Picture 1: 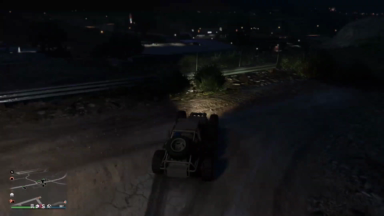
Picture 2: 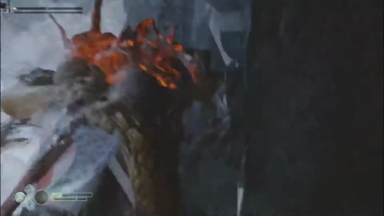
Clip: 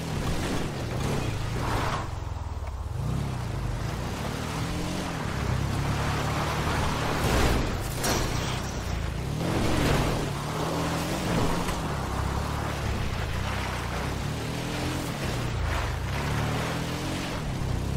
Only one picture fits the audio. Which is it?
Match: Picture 1